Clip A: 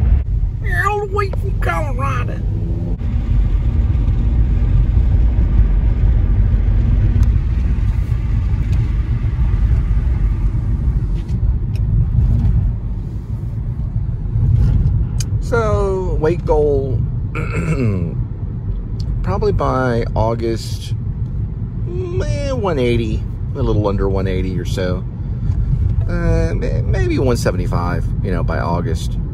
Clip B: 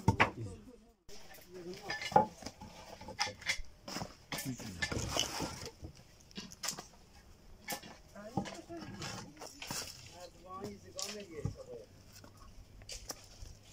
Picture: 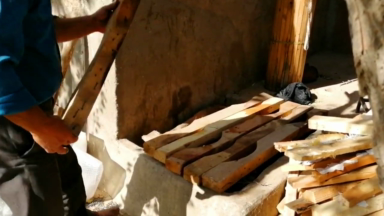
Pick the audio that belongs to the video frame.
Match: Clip B